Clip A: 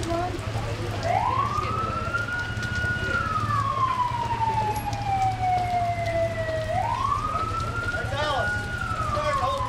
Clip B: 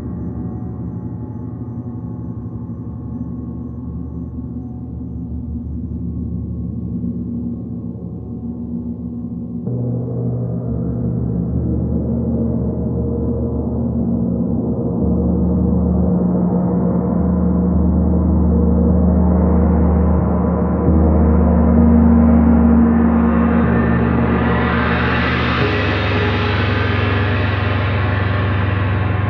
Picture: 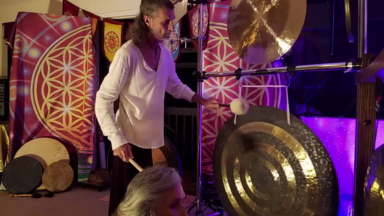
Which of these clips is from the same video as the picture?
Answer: B